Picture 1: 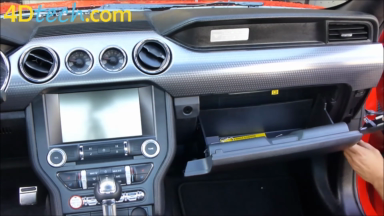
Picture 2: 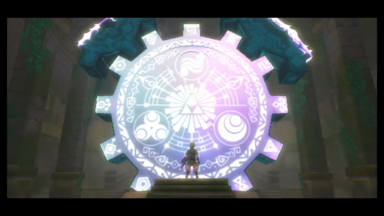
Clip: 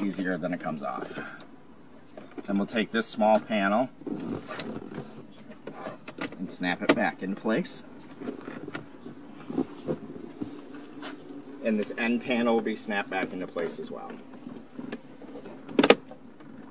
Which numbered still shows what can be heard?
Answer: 1